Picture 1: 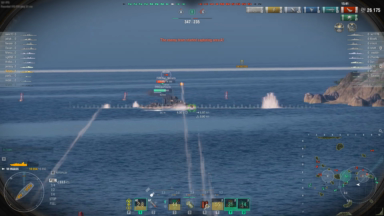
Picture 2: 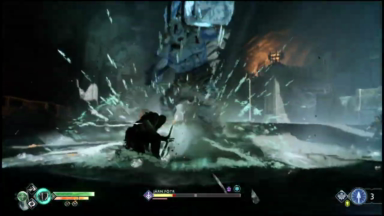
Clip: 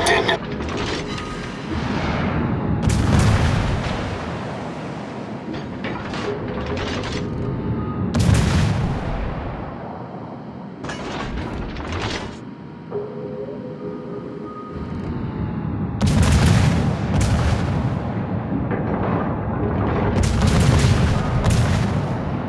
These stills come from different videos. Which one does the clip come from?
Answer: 1